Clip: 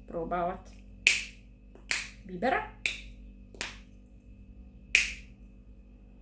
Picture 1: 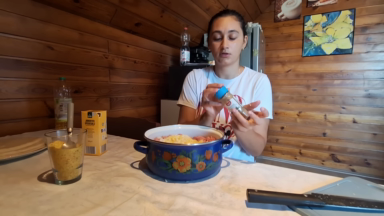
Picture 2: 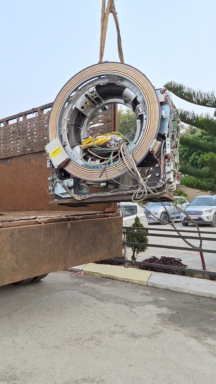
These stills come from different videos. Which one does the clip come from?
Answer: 1